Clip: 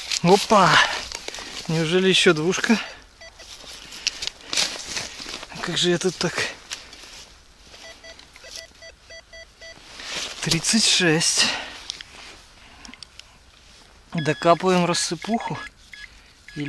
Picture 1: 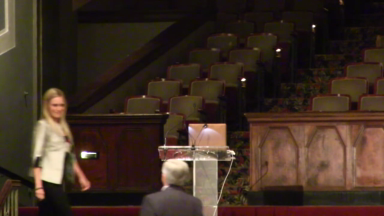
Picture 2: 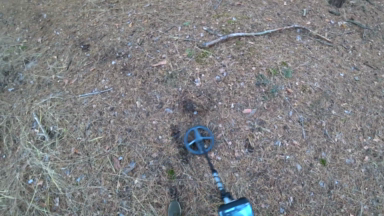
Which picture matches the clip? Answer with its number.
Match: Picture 2